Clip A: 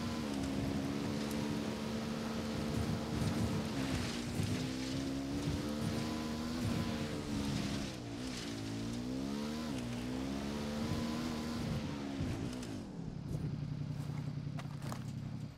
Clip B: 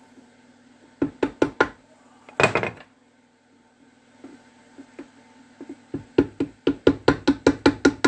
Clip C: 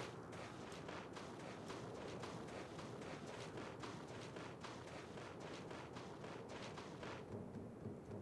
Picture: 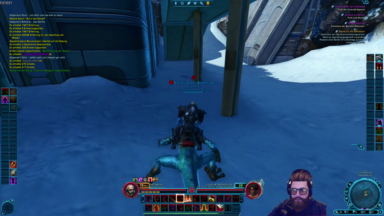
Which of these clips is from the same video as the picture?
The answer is C